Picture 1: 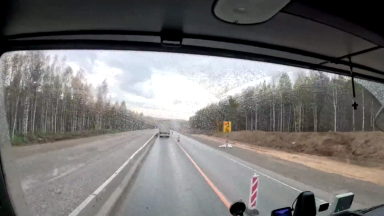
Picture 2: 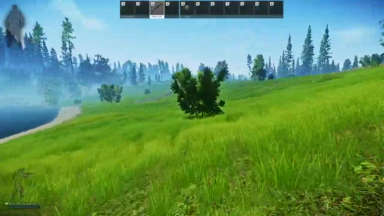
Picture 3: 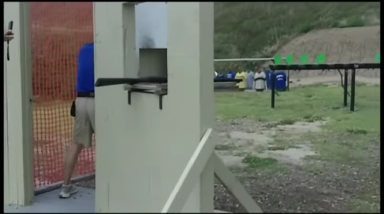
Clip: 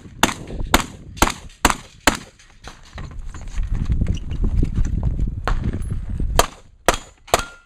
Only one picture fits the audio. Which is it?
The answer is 3